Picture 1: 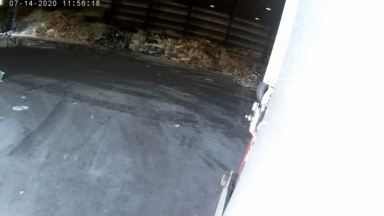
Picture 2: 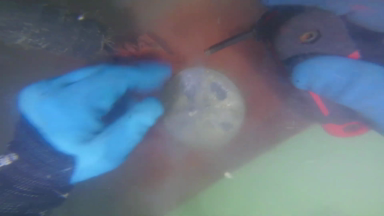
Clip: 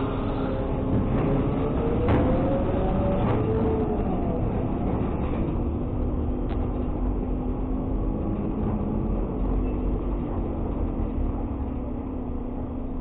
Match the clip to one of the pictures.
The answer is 1